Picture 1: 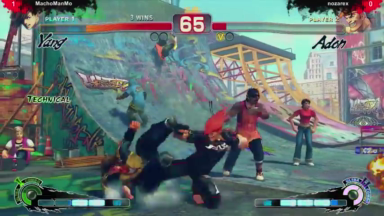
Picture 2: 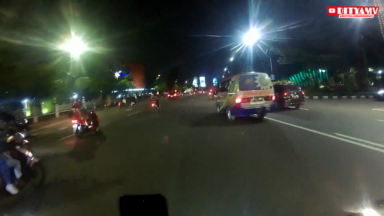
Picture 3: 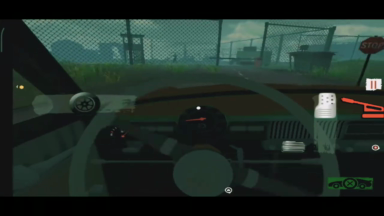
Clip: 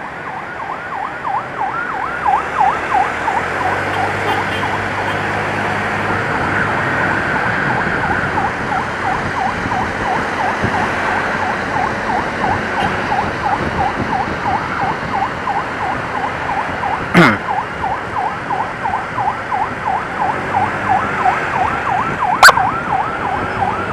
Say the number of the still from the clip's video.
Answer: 2